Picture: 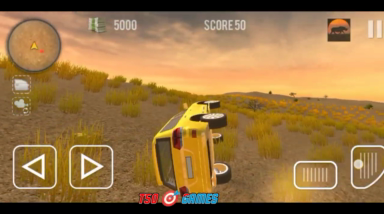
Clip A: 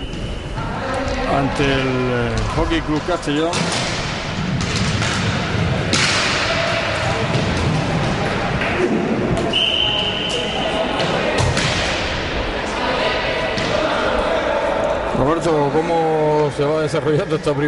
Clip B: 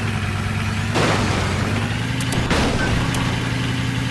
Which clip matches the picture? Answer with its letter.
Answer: B